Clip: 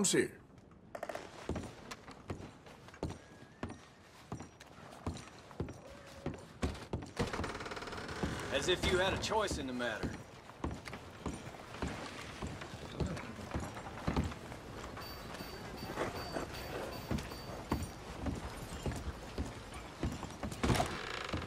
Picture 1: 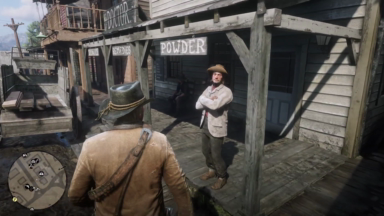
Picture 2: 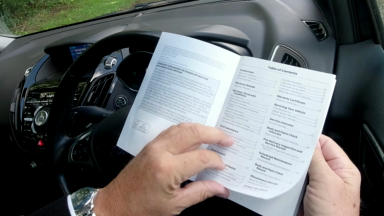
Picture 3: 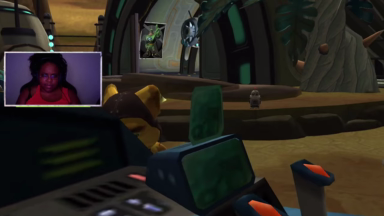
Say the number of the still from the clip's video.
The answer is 1